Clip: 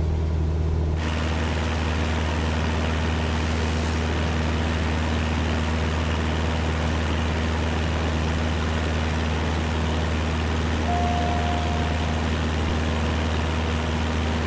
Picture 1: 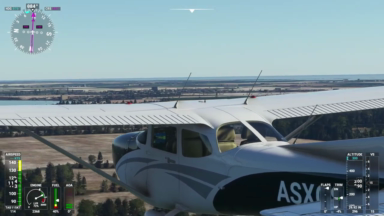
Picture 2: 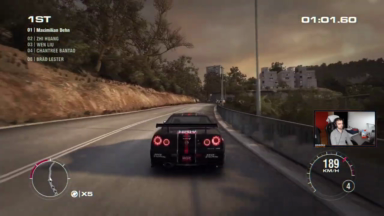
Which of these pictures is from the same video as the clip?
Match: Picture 1